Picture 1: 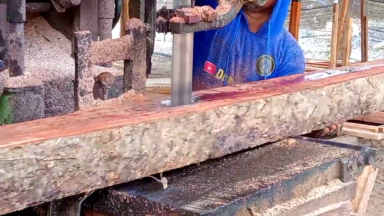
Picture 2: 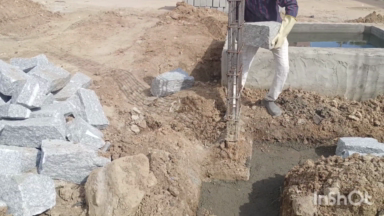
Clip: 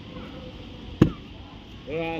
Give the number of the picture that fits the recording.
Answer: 2